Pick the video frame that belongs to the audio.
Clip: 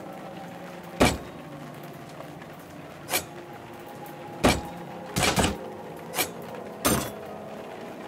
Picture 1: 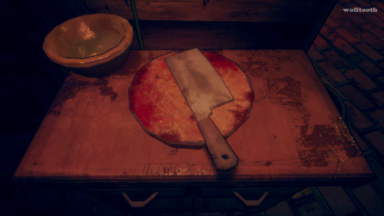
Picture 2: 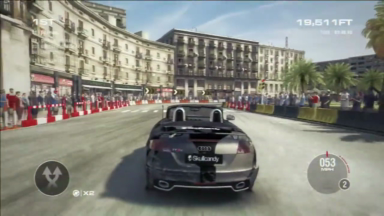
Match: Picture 1